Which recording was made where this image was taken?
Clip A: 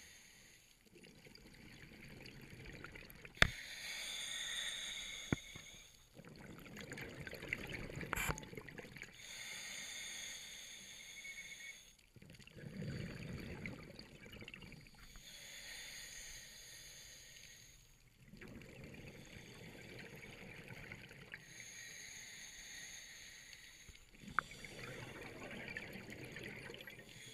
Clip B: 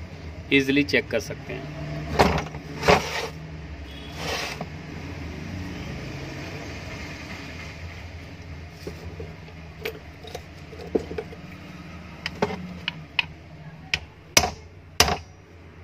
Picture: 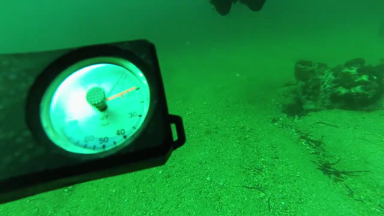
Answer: A